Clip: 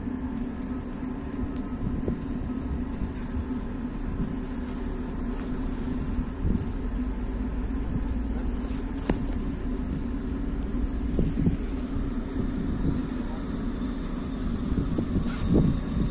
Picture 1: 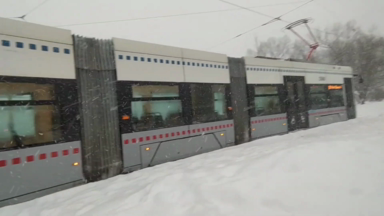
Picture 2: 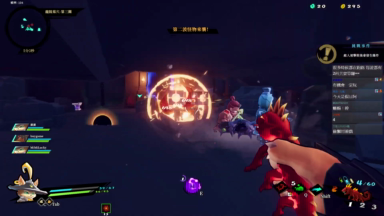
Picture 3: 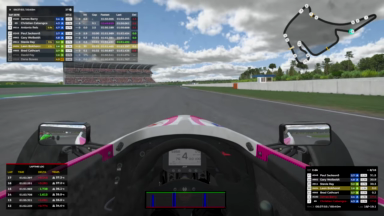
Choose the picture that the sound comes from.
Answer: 1